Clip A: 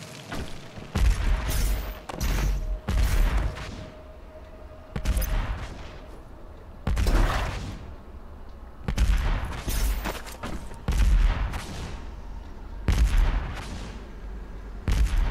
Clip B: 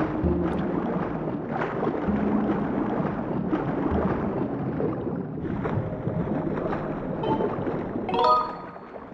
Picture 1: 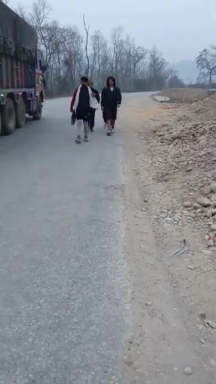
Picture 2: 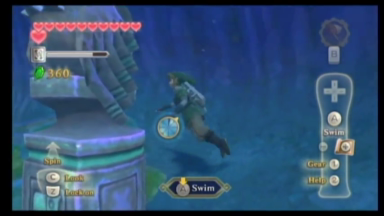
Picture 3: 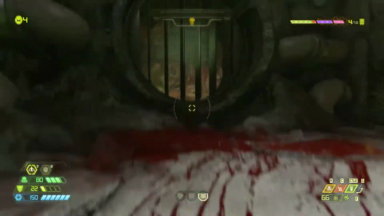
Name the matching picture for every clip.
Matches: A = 3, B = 2